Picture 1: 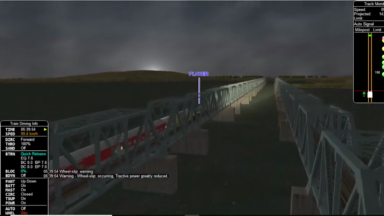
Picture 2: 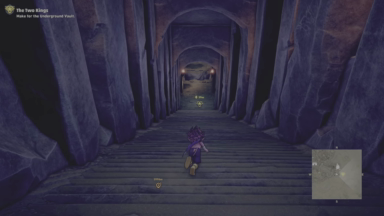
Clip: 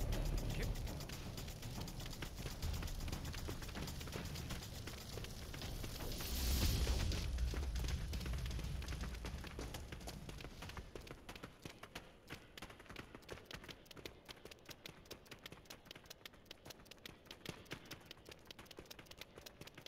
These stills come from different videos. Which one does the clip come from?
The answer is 2